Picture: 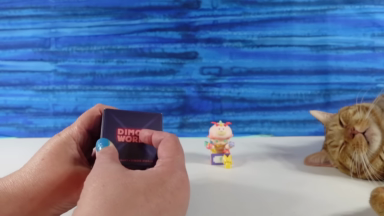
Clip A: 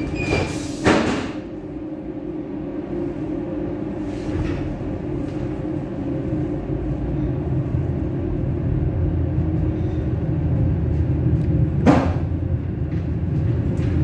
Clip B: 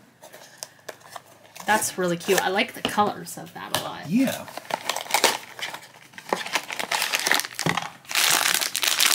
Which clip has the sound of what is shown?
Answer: B